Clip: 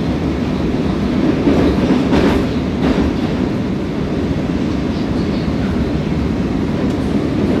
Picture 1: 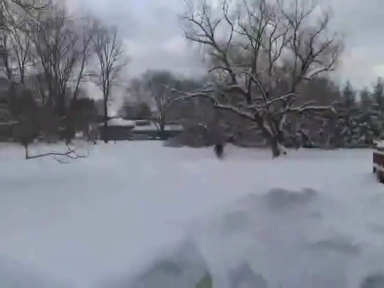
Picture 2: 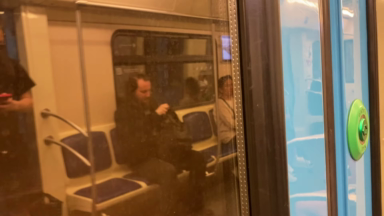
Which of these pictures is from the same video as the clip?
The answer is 2